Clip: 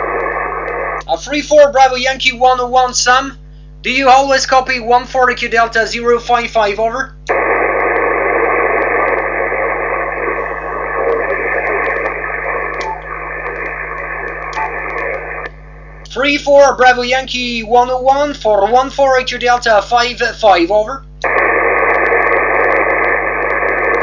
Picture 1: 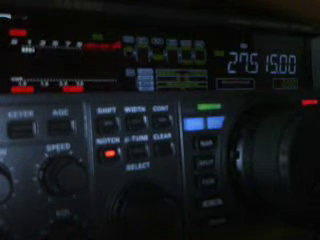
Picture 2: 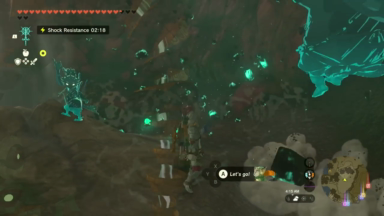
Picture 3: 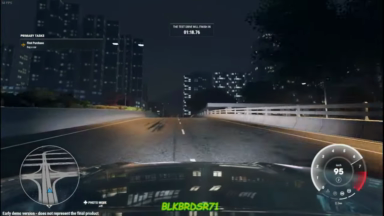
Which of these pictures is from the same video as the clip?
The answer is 1